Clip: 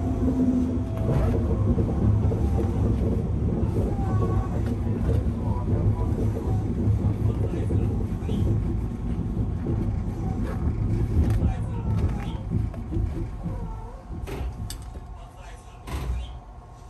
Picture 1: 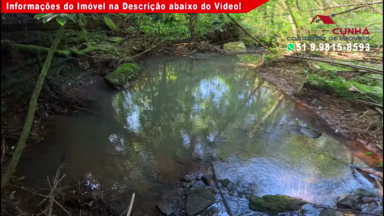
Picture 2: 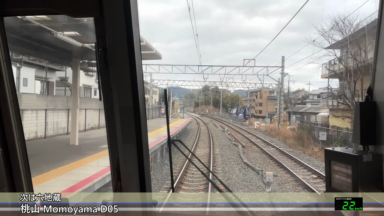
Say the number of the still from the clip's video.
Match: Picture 2